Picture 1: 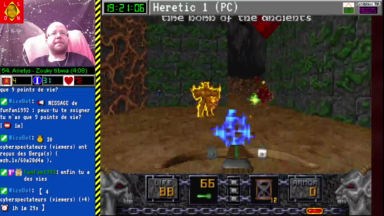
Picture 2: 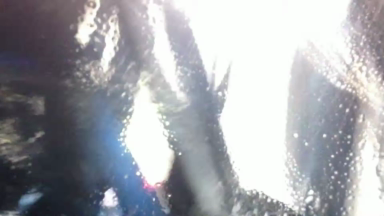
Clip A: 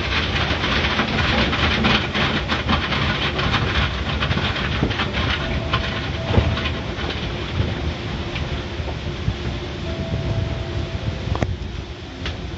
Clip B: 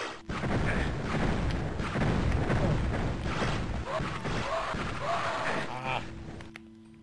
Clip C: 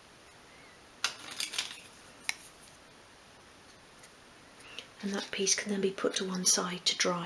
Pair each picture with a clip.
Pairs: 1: B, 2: A